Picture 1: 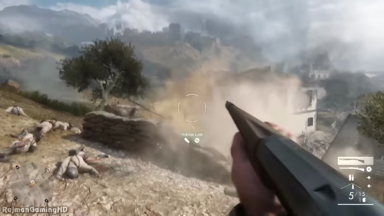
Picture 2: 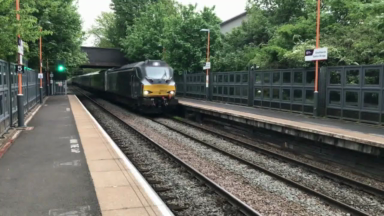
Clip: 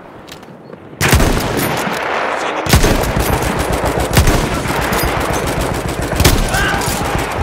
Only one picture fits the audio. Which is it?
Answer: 1